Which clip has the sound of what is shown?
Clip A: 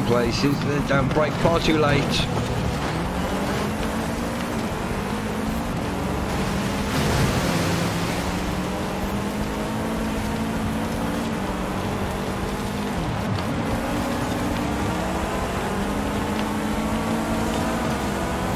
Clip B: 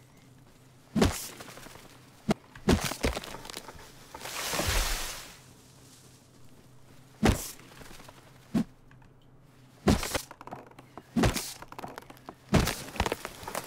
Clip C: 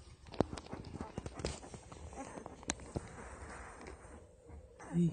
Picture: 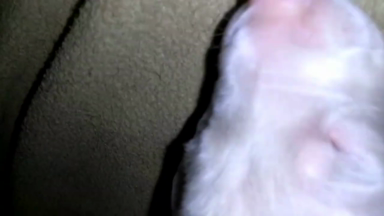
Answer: C